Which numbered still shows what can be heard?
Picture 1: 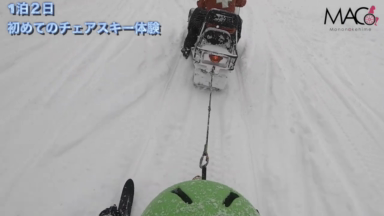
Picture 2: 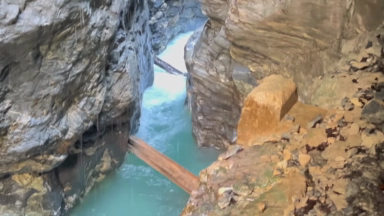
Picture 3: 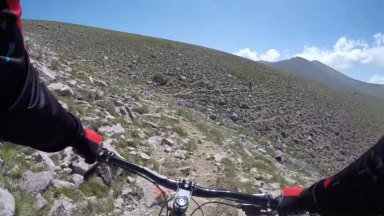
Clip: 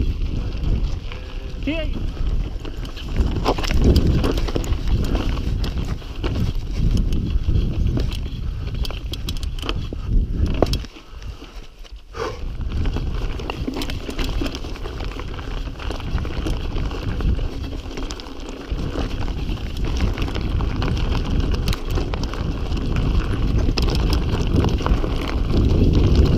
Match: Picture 3